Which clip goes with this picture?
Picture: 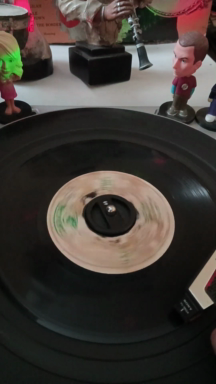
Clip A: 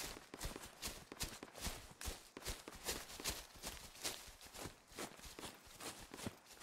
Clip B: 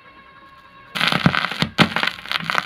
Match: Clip B